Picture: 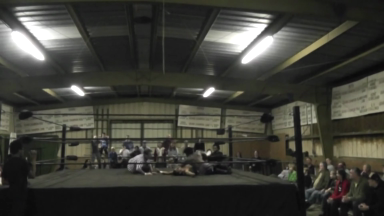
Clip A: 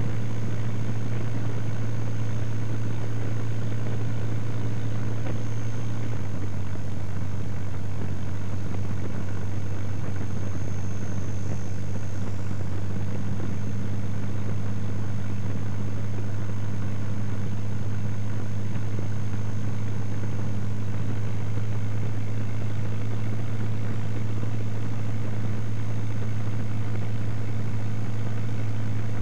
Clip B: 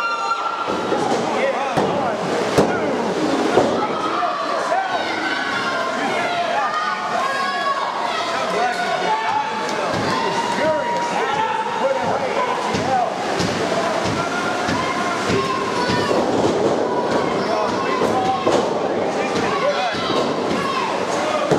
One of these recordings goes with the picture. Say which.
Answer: B